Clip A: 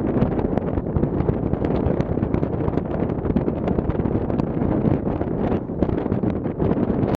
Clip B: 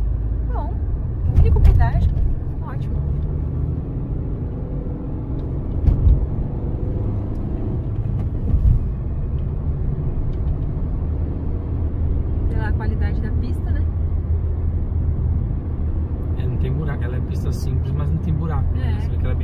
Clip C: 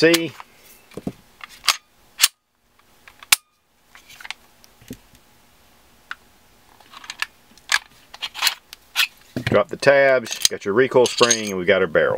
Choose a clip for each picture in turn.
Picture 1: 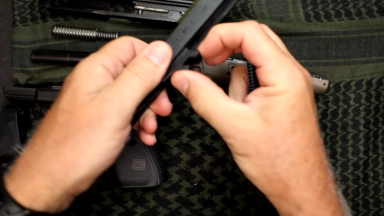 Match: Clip C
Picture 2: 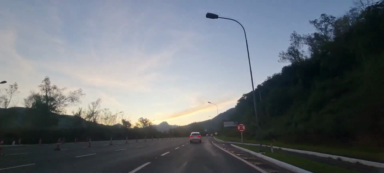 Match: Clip B